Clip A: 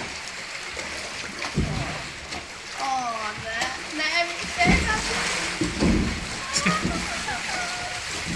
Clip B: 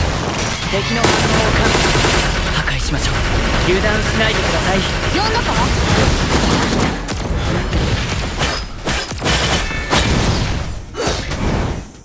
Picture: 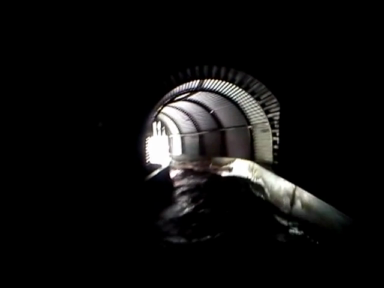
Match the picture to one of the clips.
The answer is A